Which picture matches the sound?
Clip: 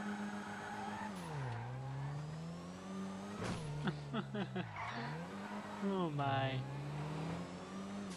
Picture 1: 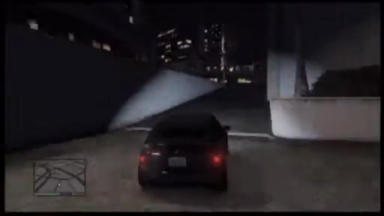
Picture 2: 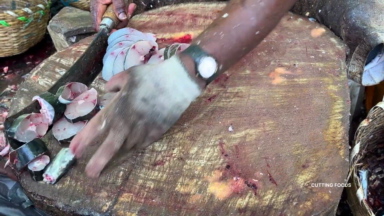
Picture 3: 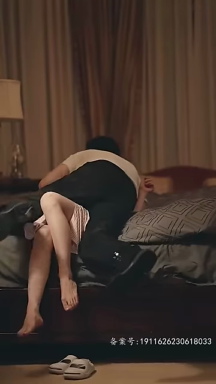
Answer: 1